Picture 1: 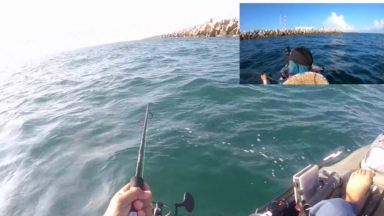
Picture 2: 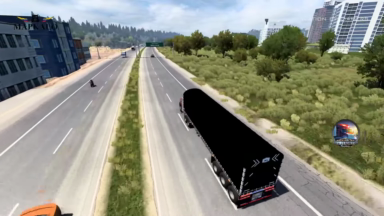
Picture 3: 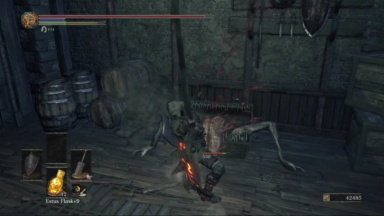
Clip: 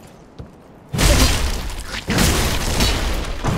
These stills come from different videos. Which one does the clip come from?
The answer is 3